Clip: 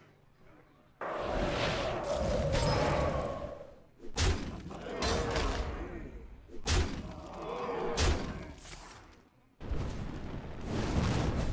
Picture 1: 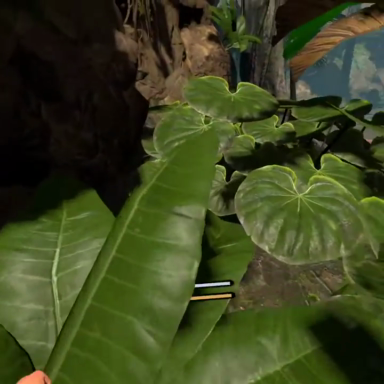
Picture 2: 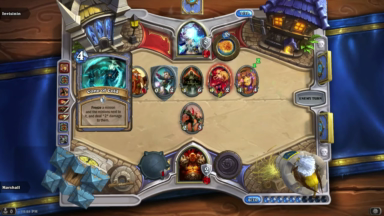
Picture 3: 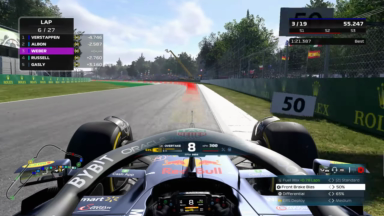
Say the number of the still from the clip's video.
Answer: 2